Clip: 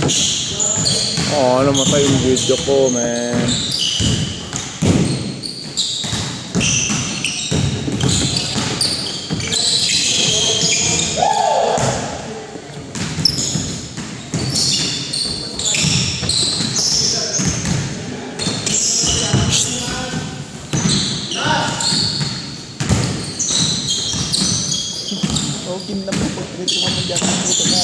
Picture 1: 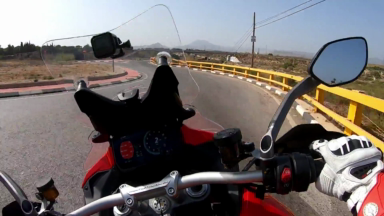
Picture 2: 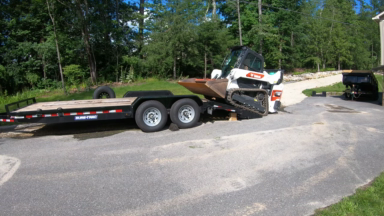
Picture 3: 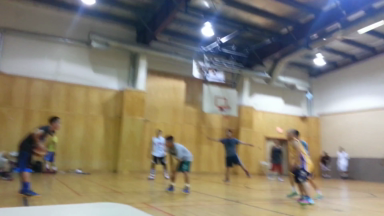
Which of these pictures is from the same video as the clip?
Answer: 3